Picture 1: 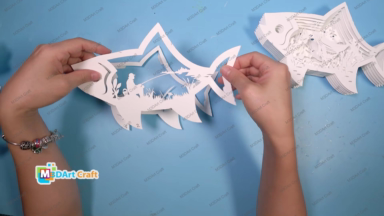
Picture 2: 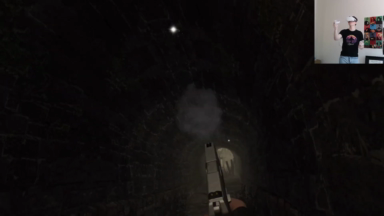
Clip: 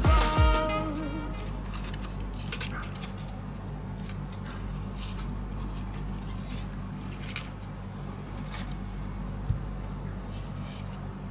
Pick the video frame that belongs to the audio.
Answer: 1